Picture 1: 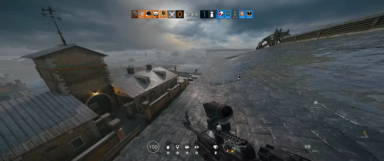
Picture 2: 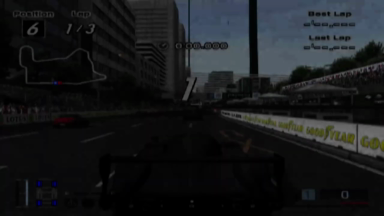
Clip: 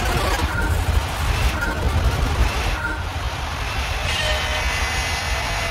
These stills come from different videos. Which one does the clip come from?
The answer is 2